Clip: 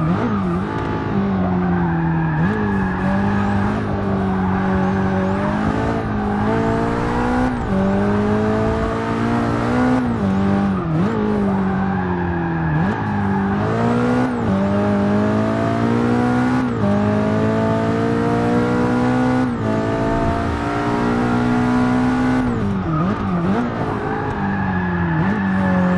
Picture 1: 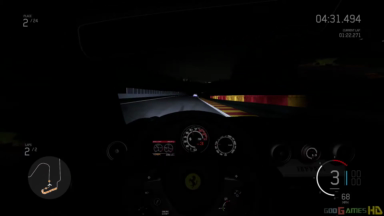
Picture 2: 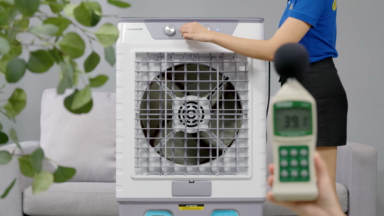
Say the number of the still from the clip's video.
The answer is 1